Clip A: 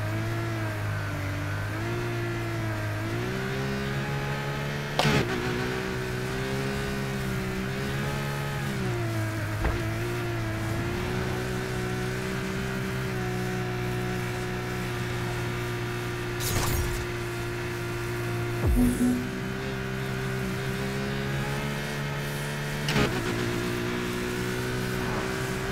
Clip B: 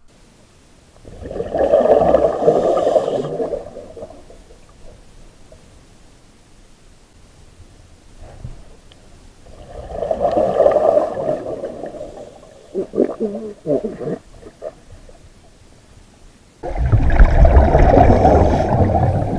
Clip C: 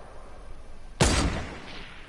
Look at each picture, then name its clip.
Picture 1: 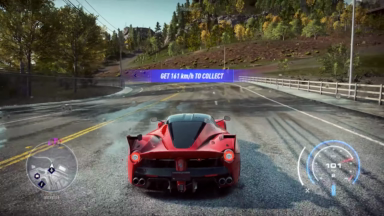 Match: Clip A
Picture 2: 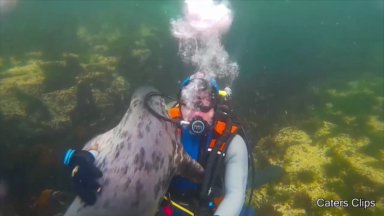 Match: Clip B